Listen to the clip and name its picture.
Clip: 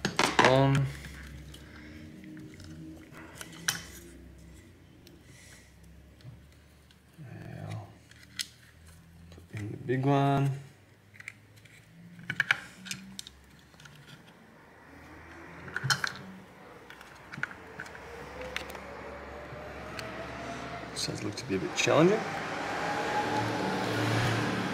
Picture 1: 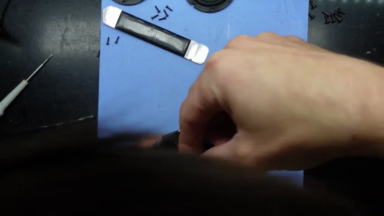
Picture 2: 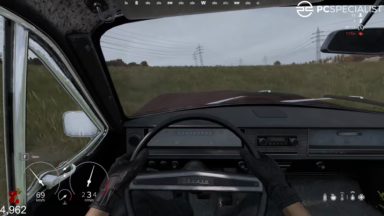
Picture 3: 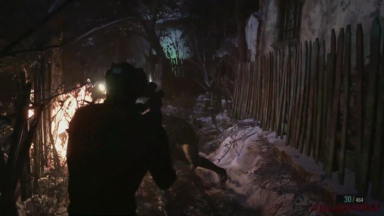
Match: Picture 1